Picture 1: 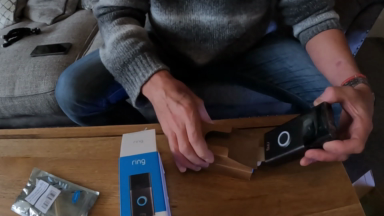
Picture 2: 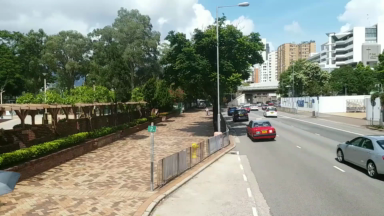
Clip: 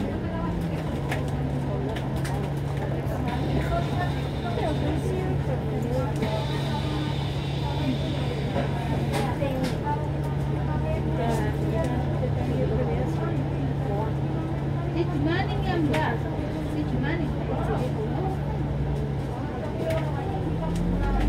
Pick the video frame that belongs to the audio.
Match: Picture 2